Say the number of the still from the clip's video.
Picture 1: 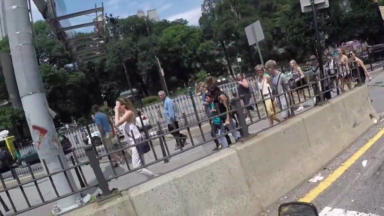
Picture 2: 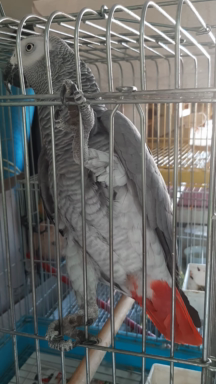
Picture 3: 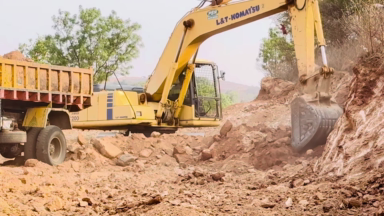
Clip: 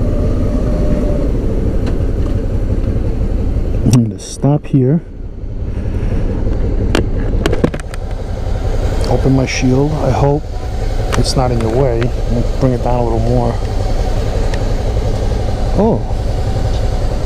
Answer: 1